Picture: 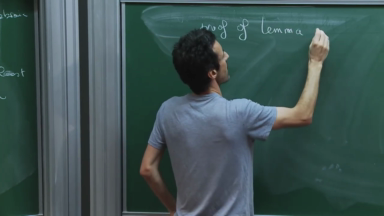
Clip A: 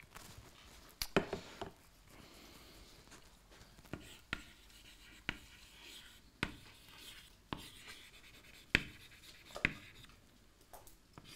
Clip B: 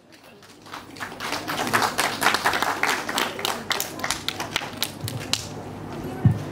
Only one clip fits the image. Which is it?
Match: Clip A